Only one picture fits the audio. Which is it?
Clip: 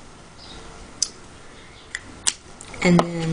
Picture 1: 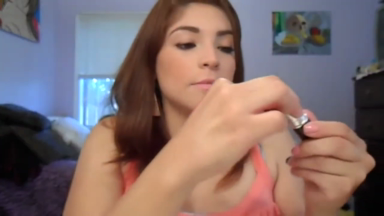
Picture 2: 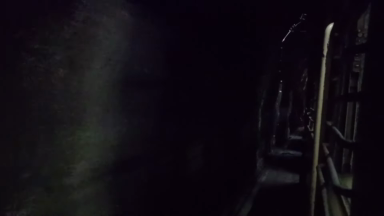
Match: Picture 1